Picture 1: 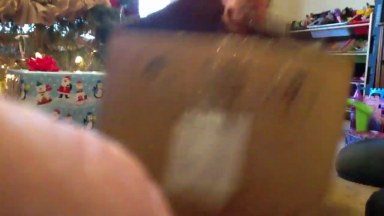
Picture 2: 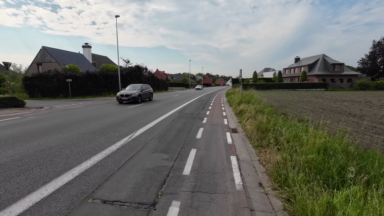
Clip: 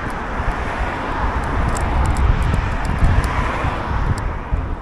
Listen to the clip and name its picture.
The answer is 2